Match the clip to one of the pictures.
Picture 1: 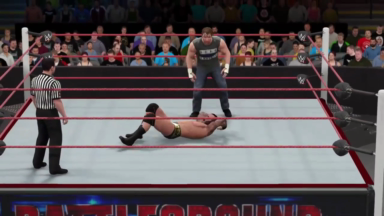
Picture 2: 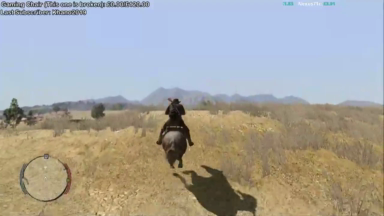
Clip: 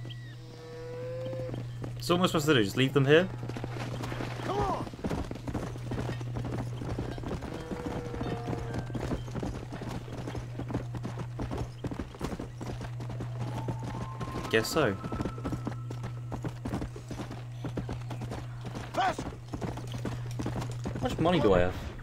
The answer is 2